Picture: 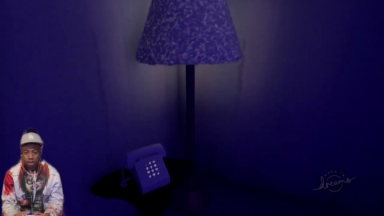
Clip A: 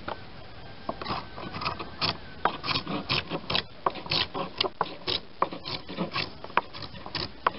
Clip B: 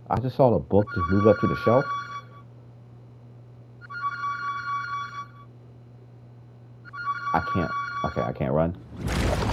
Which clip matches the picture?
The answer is B